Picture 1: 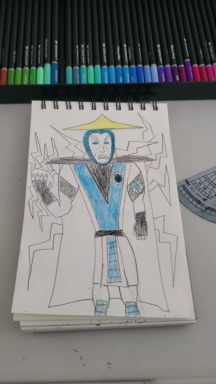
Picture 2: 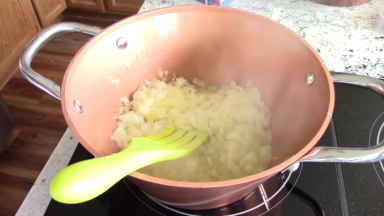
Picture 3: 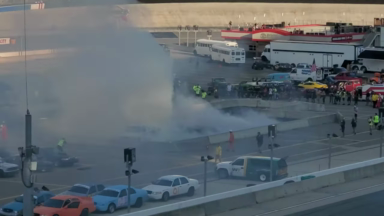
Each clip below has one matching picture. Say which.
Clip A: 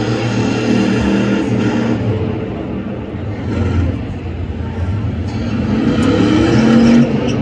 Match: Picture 3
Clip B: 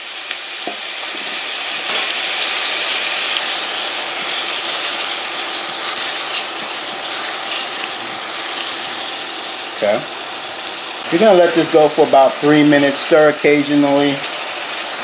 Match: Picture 2